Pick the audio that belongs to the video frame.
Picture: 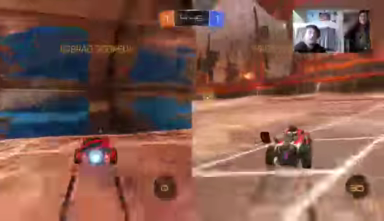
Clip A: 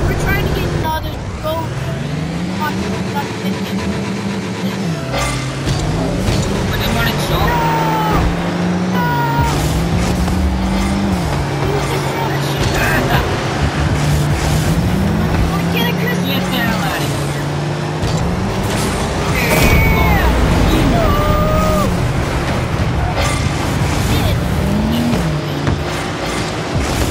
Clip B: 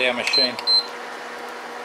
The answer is A